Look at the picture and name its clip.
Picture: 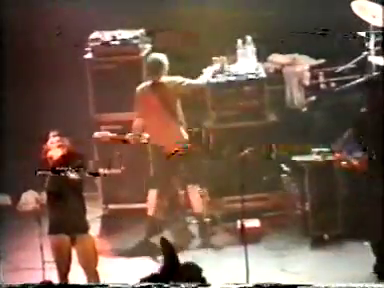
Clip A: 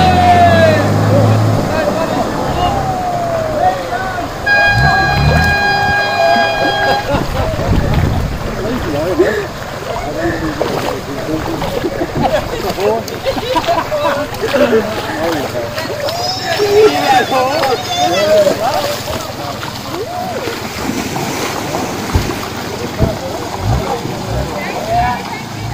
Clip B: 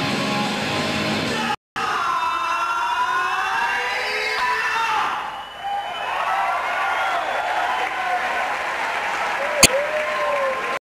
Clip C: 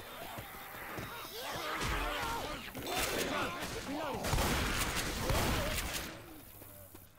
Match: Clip B